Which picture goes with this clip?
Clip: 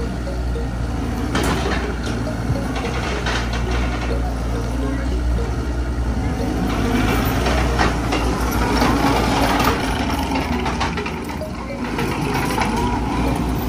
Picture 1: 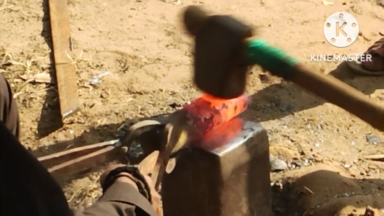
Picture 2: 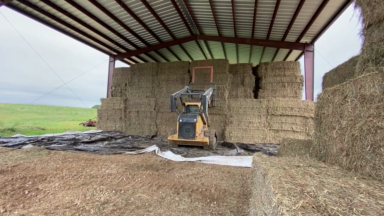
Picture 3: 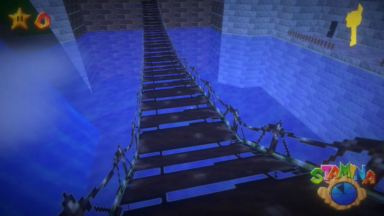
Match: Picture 2